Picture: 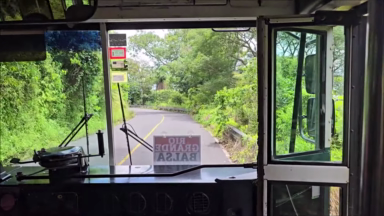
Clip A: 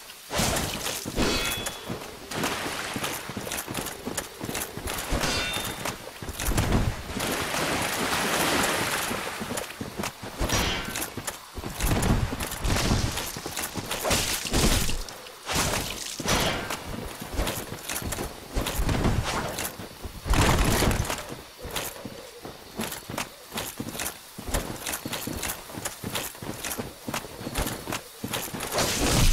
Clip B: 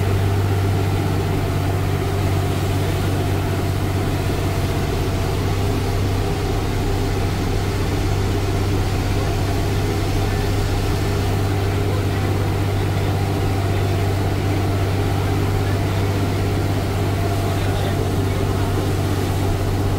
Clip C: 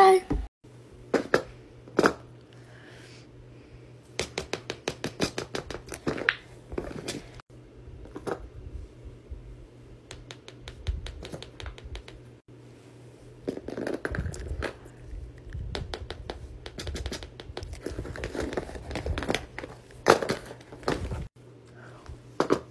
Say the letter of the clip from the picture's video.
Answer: B